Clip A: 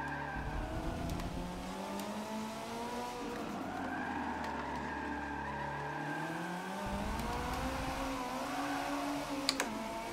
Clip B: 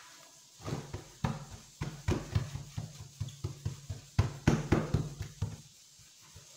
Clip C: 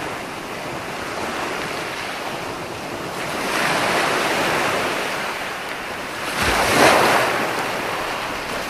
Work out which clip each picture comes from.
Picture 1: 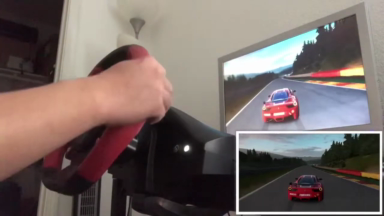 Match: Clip A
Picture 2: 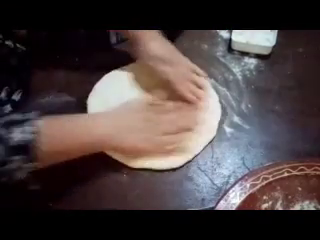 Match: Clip B